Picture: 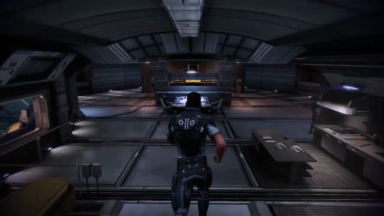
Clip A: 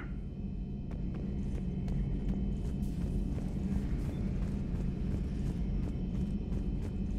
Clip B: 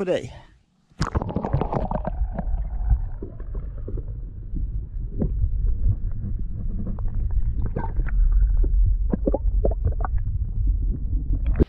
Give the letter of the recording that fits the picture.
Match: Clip A